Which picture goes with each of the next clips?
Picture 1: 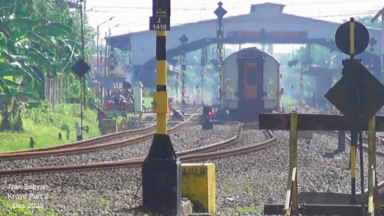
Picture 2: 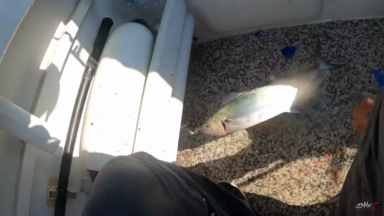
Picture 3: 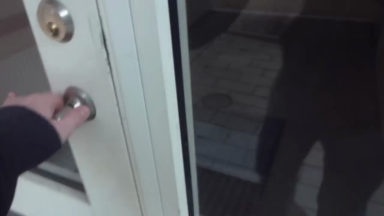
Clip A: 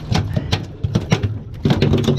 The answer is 2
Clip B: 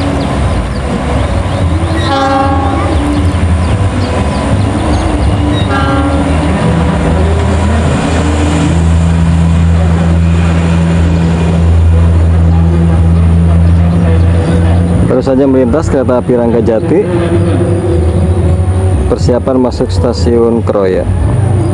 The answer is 1